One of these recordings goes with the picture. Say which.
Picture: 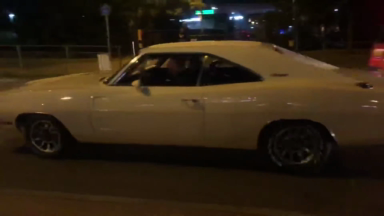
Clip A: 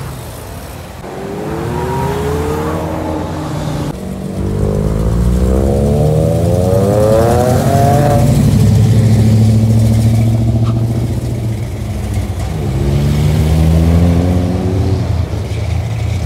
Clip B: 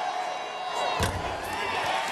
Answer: A